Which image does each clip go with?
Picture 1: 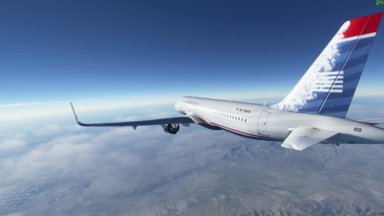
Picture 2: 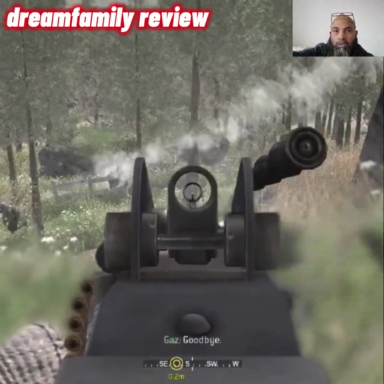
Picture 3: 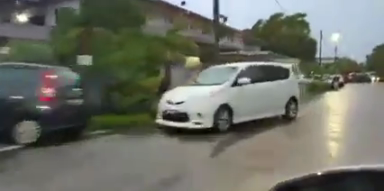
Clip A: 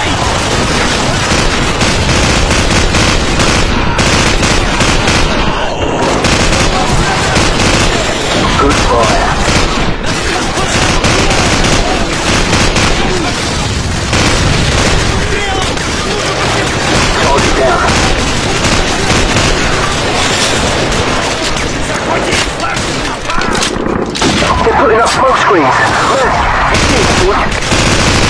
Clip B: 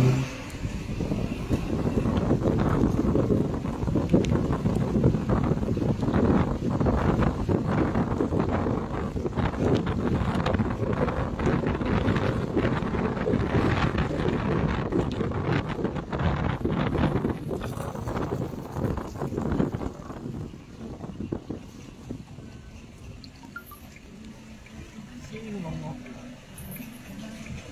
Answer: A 2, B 3